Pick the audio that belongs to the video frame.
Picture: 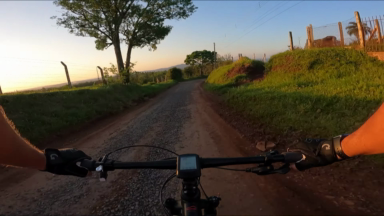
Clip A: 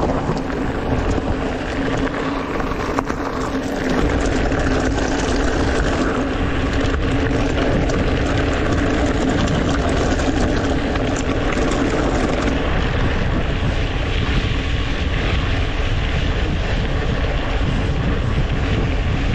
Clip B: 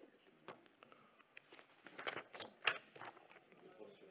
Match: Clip A